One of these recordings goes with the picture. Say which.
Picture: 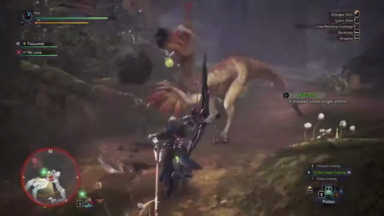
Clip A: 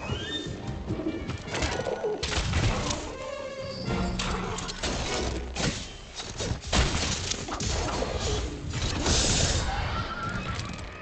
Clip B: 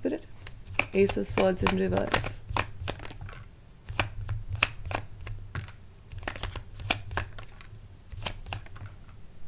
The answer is A